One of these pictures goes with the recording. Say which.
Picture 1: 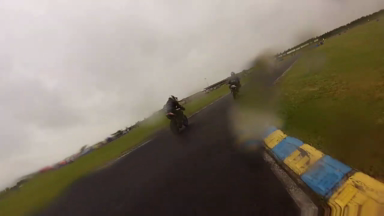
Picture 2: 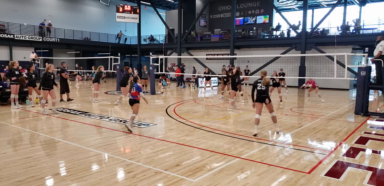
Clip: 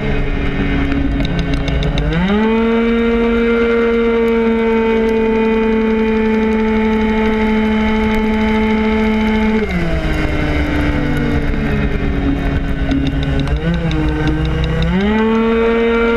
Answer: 1